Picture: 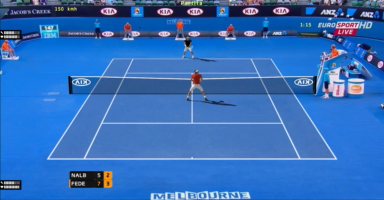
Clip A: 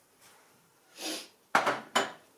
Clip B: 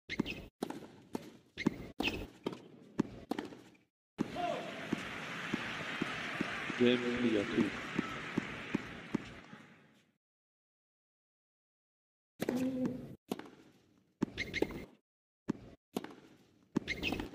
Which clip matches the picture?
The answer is B